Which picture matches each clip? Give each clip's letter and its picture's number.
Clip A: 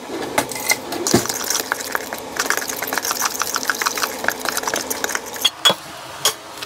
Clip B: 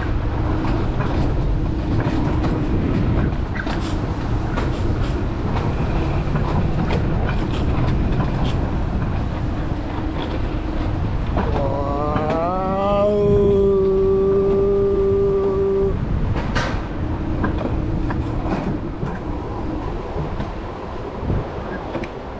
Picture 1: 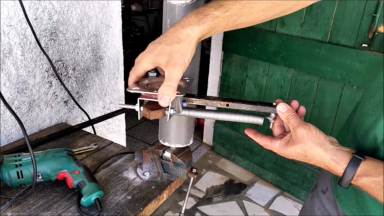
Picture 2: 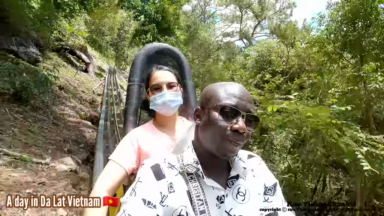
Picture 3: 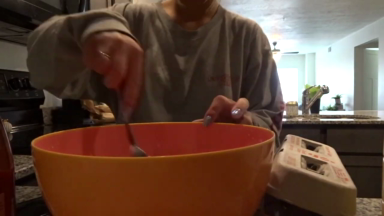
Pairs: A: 3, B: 2